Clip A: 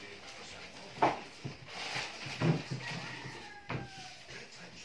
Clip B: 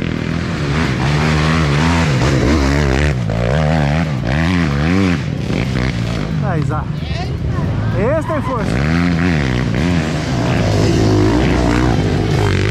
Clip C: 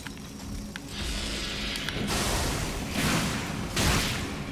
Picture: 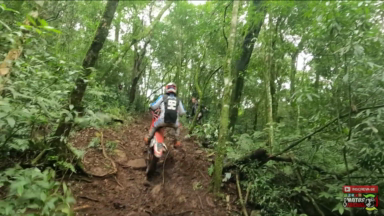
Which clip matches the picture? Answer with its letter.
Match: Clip B